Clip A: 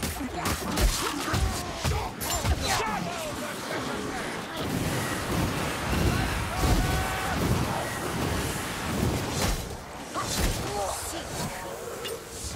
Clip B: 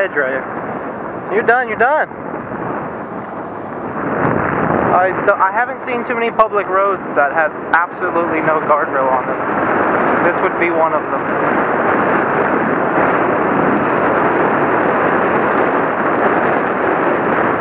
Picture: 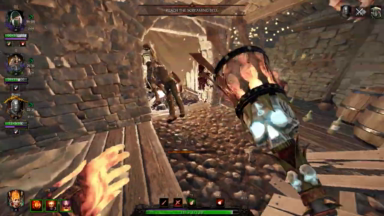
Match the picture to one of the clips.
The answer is A